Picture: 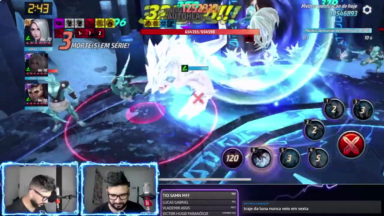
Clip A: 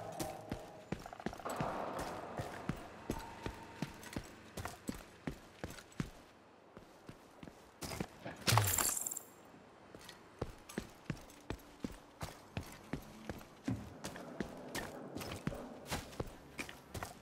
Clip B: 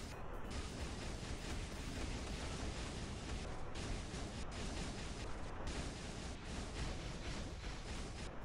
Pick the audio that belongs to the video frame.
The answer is B